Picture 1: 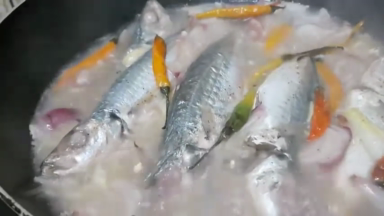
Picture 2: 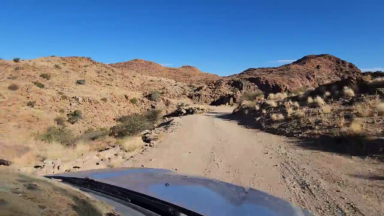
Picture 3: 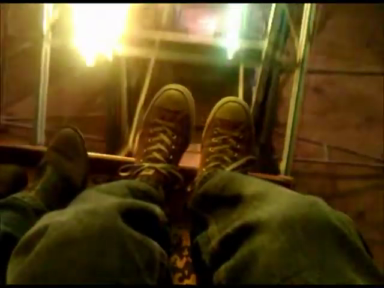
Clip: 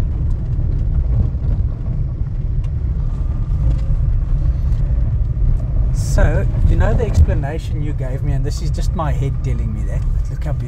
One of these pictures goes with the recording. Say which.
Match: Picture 2